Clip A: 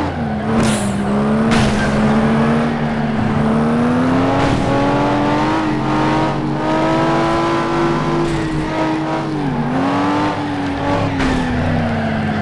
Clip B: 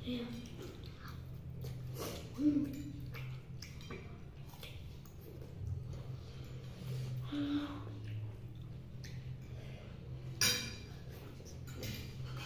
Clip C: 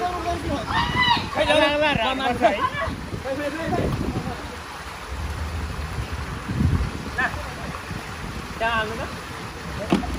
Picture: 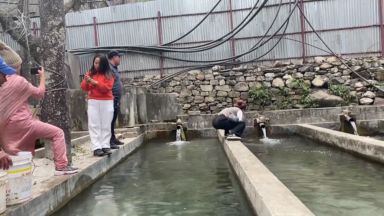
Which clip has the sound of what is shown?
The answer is C